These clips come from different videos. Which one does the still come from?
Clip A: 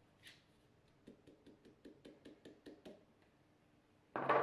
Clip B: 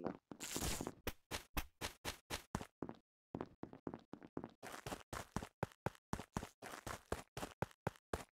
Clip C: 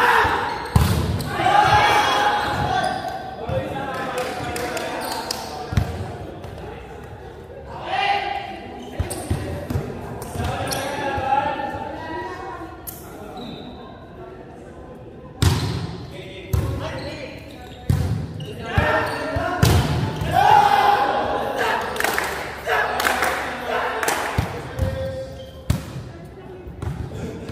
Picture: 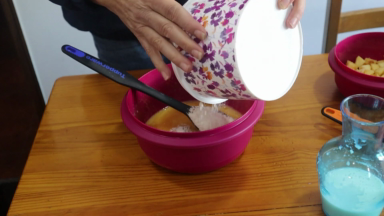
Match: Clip A